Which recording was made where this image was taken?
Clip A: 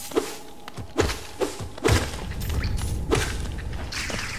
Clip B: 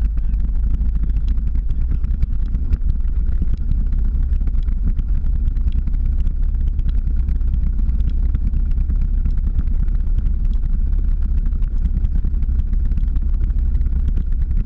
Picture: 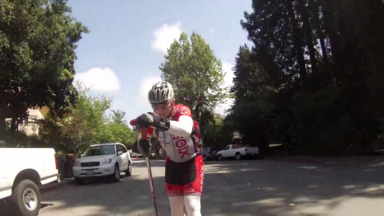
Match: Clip B